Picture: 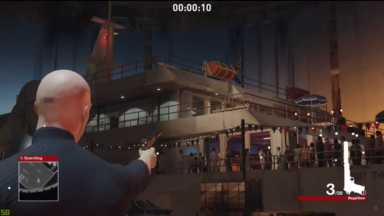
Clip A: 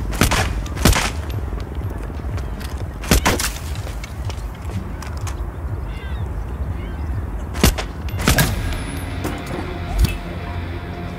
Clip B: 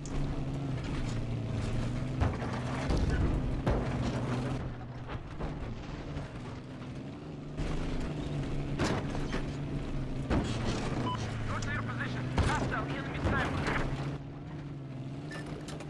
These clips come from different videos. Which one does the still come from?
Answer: A